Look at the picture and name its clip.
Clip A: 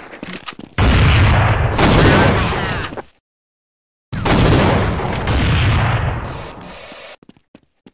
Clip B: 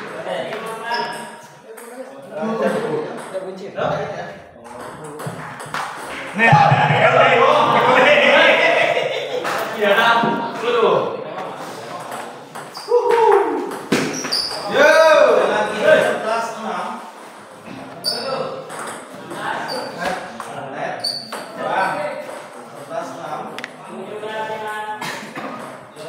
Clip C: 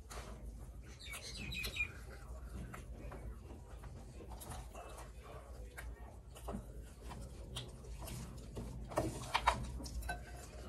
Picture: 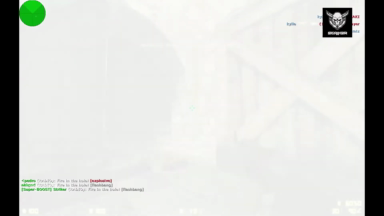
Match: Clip A